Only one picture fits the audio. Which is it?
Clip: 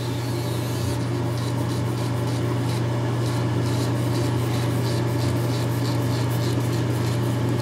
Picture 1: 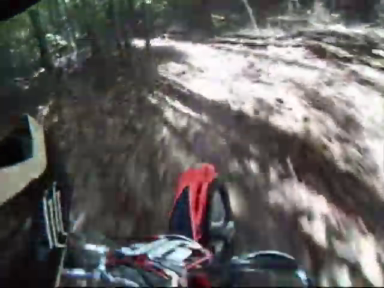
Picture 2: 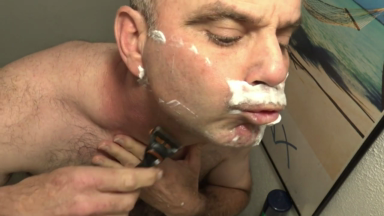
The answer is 2